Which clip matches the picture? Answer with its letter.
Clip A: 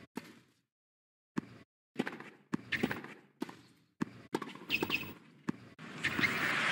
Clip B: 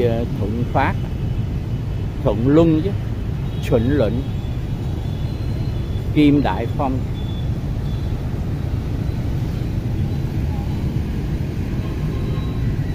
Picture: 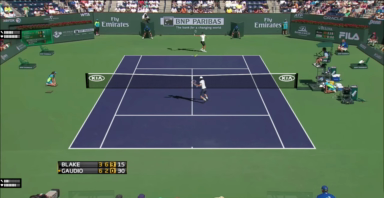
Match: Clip A